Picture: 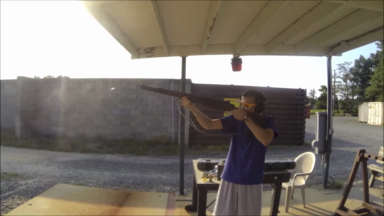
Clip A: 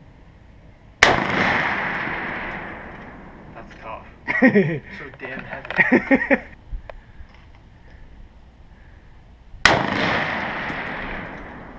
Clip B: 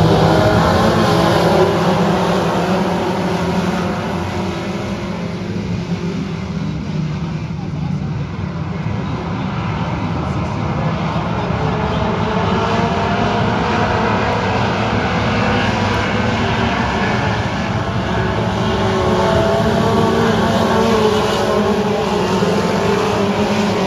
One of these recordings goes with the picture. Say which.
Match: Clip A